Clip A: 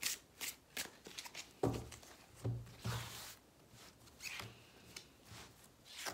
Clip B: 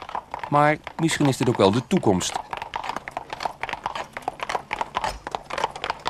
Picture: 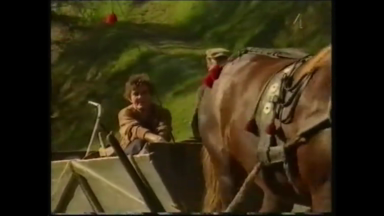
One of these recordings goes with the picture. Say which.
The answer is B